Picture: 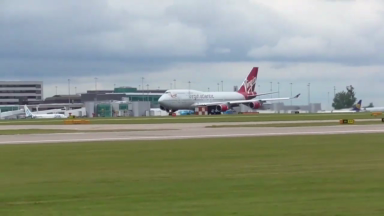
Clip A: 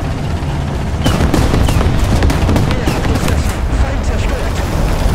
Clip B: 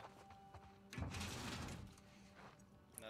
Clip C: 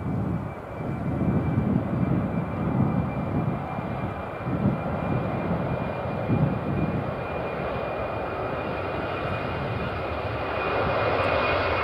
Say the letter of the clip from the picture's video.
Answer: C